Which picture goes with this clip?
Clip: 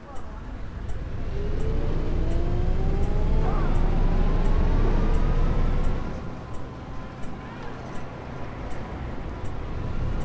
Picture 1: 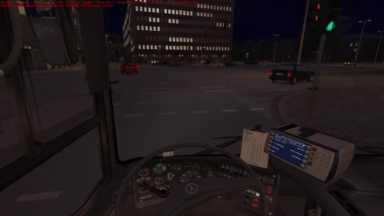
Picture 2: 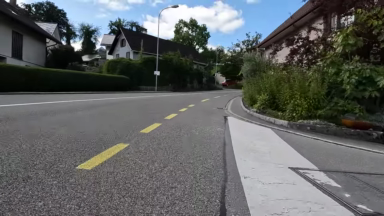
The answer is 1